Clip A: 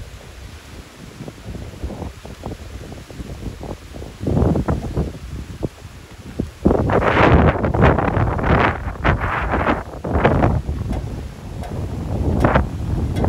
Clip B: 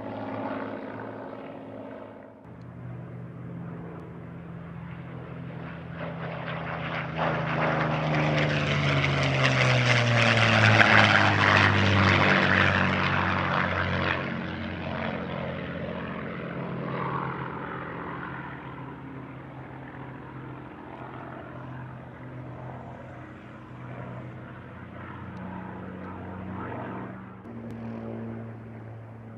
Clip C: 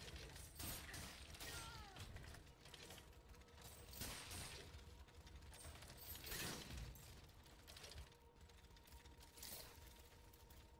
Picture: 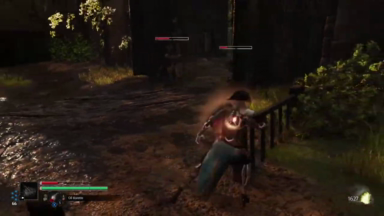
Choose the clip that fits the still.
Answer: C